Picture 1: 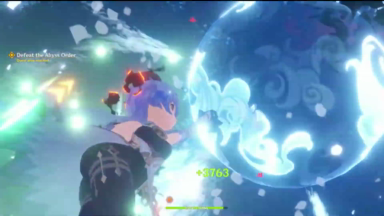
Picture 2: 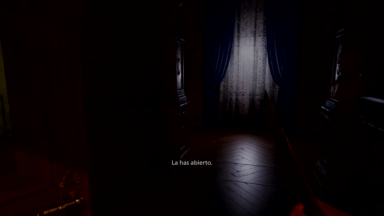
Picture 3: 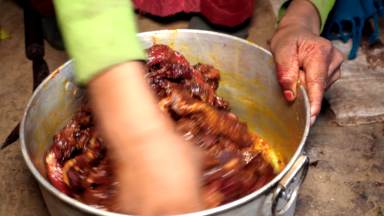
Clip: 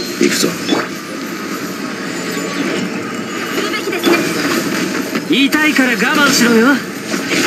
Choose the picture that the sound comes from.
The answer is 1